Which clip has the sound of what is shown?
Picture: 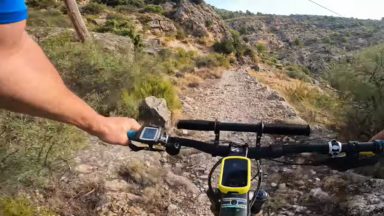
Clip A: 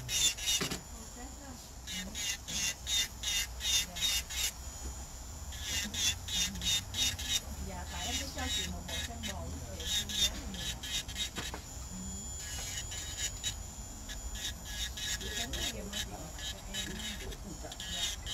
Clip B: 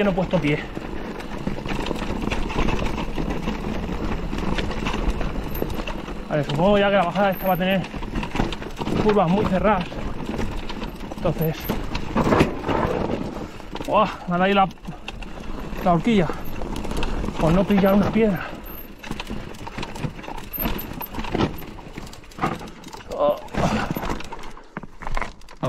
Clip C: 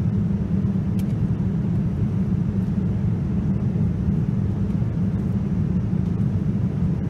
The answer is B